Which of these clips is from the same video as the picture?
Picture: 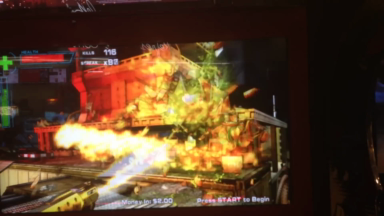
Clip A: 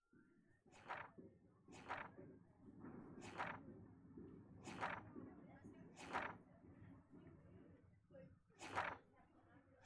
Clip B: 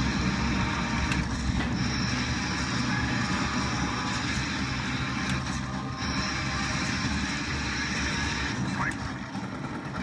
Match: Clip B